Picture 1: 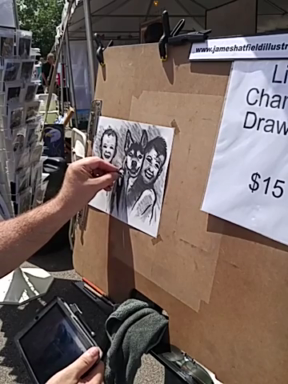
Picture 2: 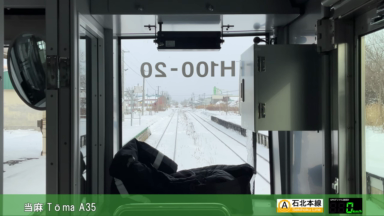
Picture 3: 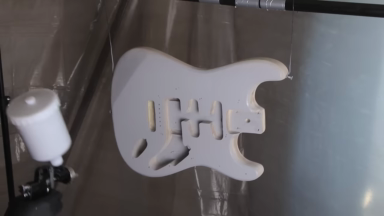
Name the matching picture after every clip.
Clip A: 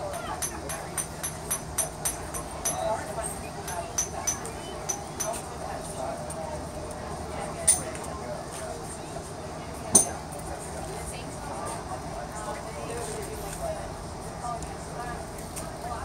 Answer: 1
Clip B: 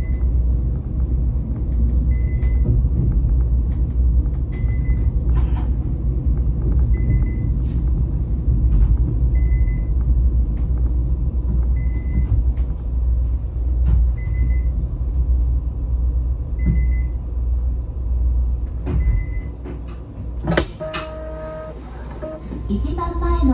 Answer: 2